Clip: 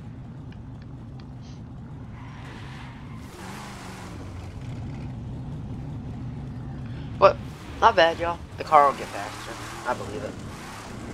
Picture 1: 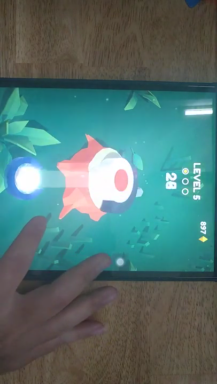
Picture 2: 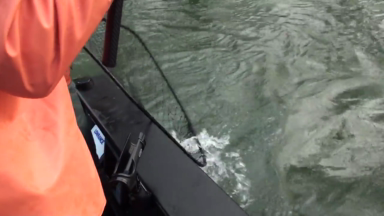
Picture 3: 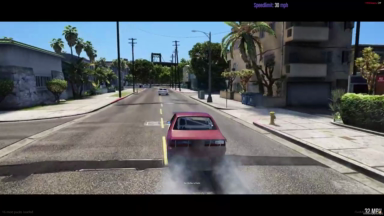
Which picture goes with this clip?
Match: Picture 3